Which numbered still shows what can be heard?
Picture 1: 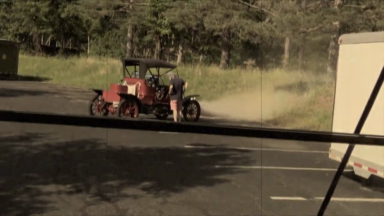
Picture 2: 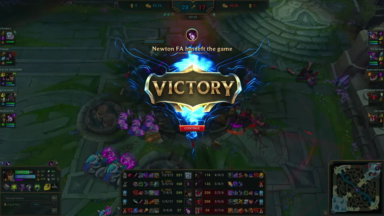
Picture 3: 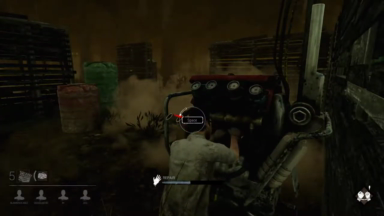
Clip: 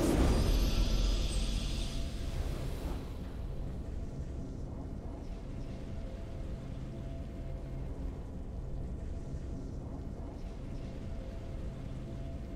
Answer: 2